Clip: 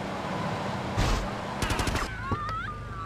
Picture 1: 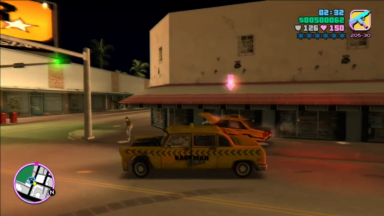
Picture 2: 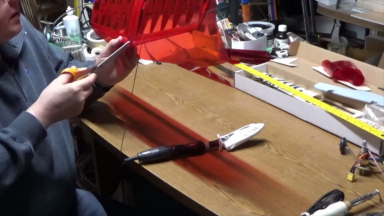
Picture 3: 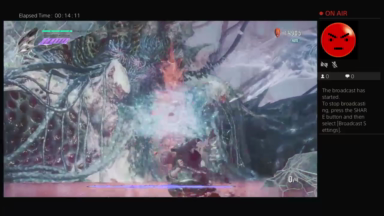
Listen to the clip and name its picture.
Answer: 1